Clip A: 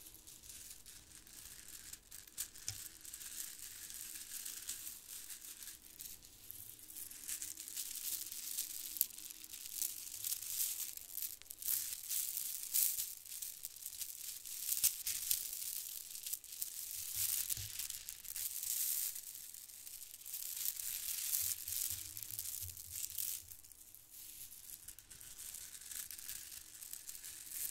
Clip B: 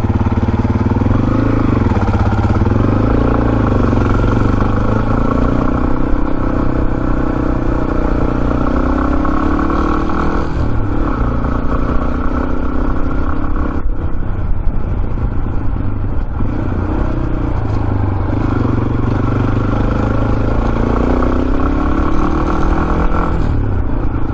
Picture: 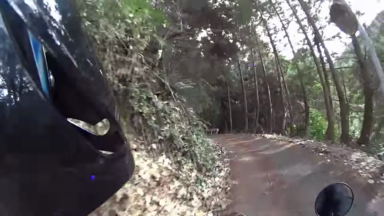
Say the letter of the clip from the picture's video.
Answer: B